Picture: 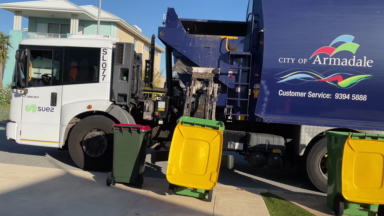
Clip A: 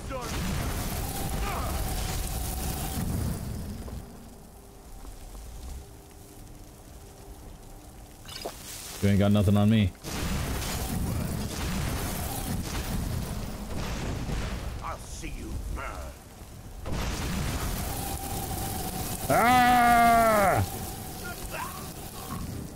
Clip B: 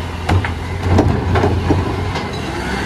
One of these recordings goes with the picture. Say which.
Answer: B